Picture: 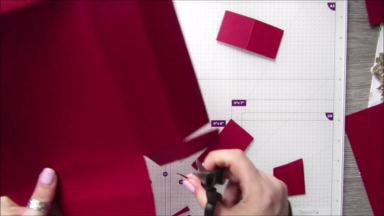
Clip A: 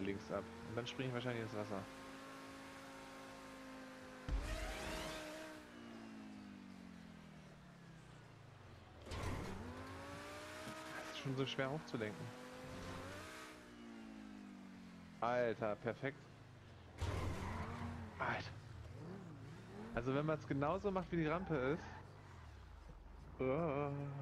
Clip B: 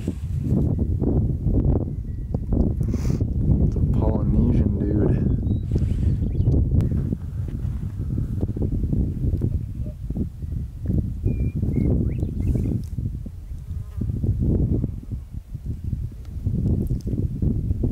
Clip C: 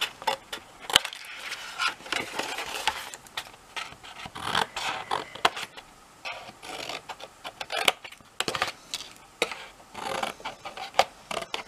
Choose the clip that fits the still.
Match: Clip C